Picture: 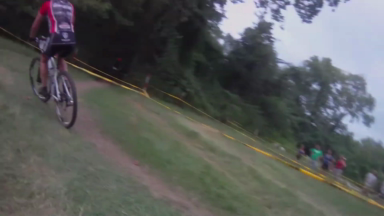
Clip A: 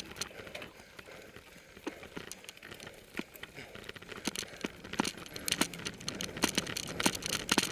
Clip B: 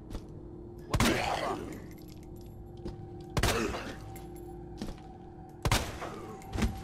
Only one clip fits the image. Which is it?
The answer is A